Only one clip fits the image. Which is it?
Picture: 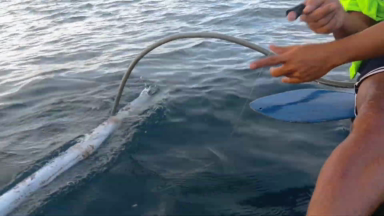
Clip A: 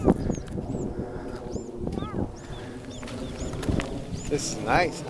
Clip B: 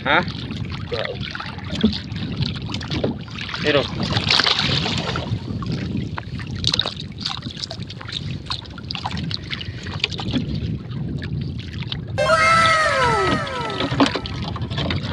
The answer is B